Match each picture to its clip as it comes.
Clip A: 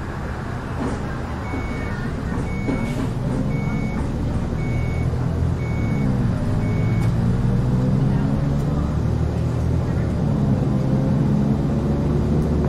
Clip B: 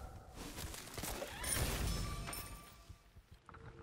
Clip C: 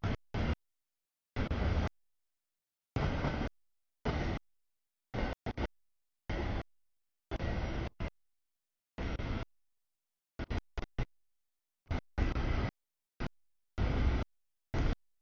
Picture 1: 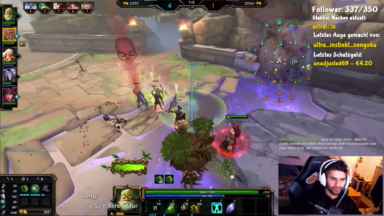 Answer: B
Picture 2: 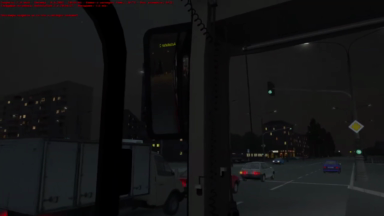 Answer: A